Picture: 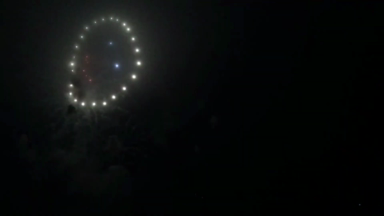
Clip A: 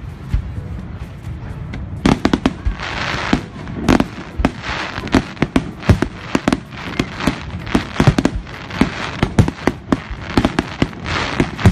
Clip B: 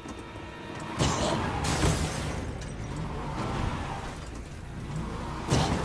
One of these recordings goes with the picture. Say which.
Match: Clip A